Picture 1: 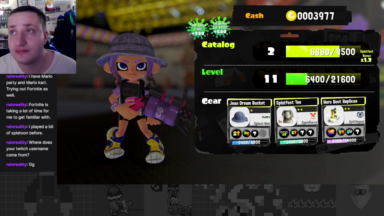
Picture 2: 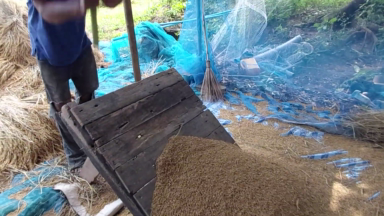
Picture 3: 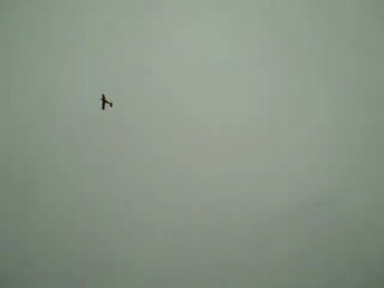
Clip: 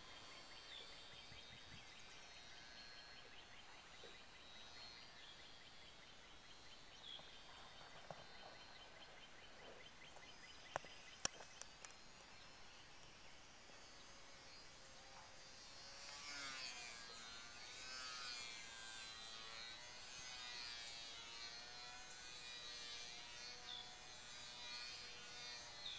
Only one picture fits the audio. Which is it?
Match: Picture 3